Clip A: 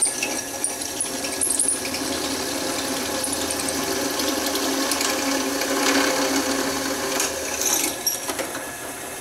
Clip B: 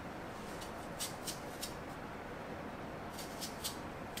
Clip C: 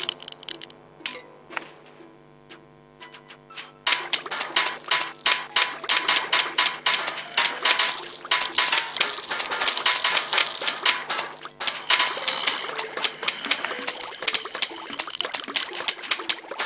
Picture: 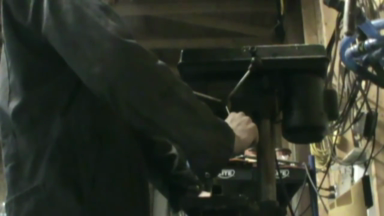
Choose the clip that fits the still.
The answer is A